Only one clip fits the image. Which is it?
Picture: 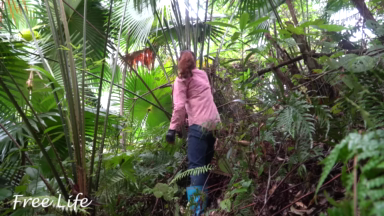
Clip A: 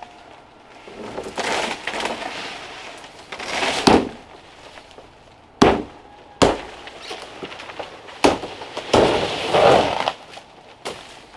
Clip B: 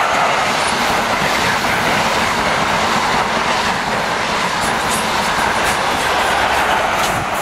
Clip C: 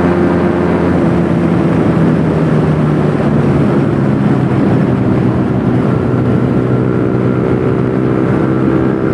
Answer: A